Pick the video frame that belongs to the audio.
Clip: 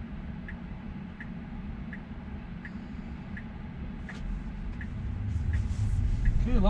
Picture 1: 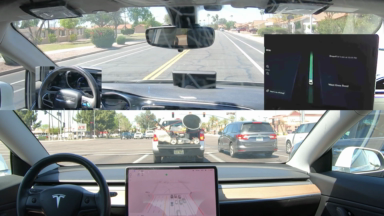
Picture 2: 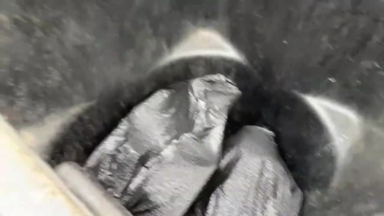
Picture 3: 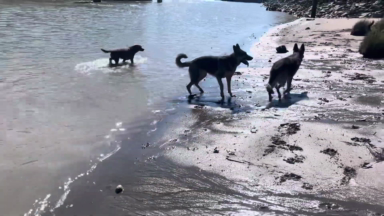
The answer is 1